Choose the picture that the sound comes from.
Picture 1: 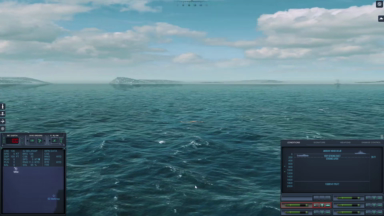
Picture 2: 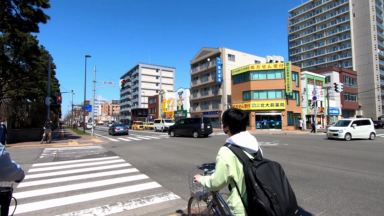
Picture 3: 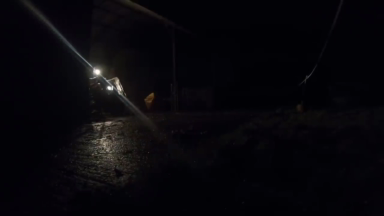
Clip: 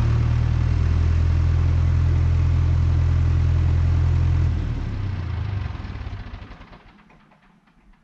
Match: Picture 3